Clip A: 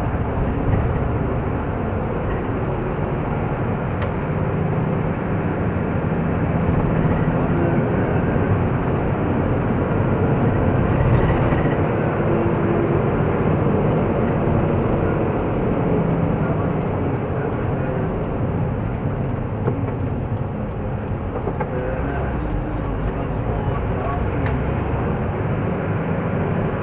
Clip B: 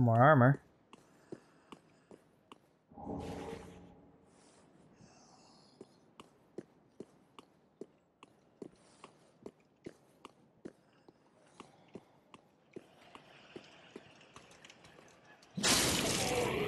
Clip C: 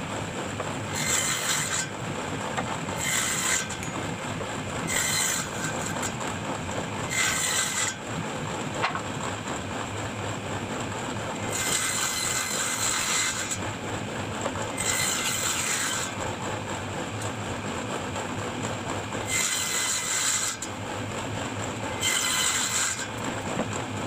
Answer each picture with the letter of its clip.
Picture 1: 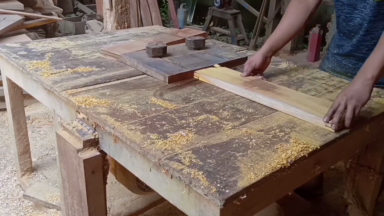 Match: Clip C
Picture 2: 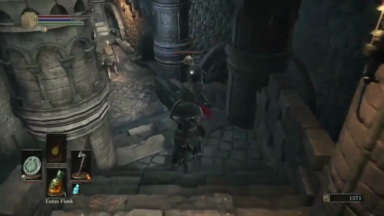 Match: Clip B